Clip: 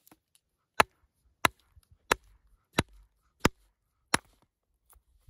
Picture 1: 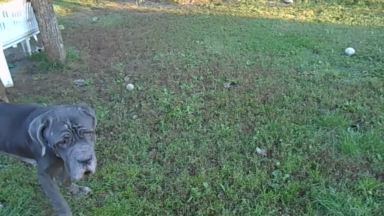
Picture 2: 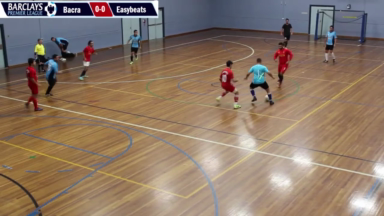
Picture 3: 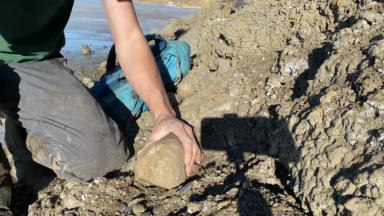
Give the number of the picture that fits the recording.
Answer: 3